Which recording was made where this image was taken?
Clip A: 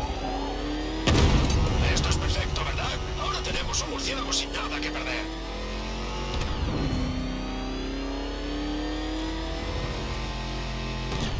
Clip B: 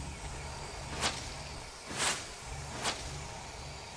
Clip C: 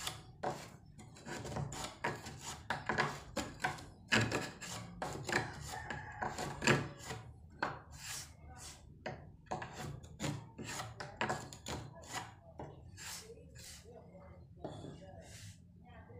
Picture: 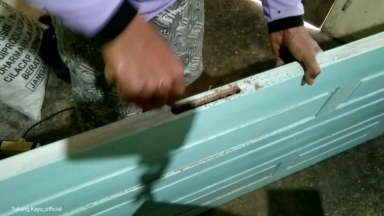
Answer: C